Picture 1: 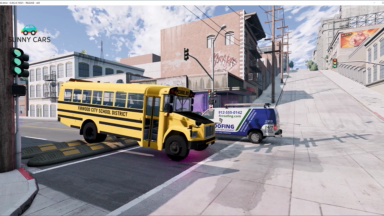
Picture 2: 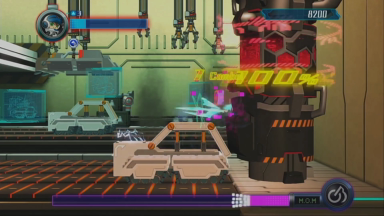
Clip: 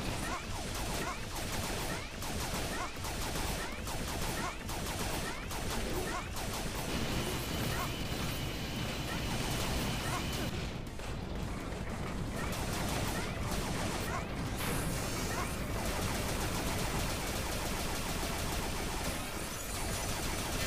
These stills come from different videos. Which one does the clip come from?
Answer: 2